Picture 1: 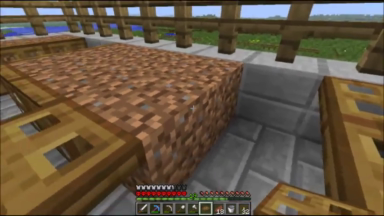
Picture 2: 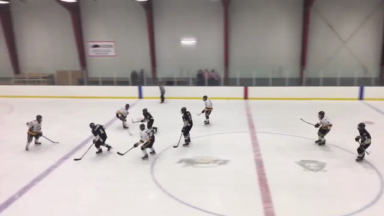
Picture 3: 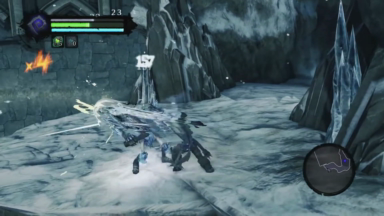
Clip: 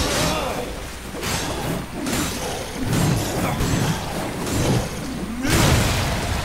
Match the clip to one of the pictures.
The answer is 3